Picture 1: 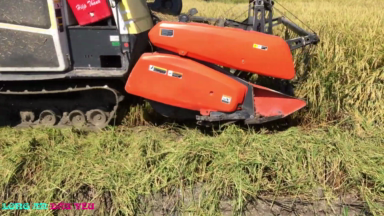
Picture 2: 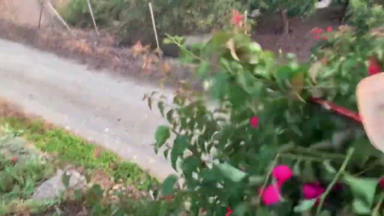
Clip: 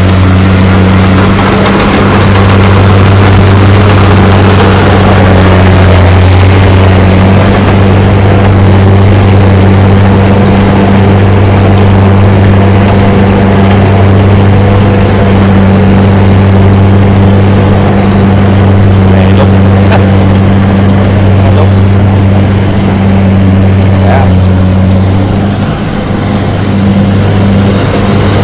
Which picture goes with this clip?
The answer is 1